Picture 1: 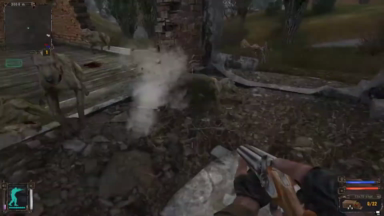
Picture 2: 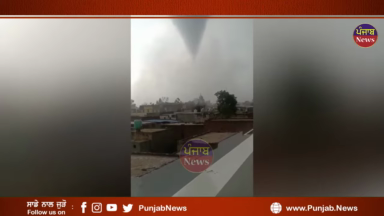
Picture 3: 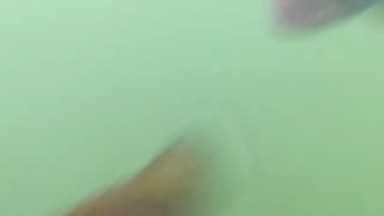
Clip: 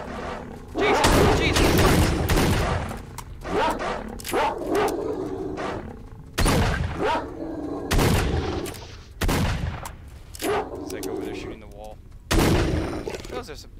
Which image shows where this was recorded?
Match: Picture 1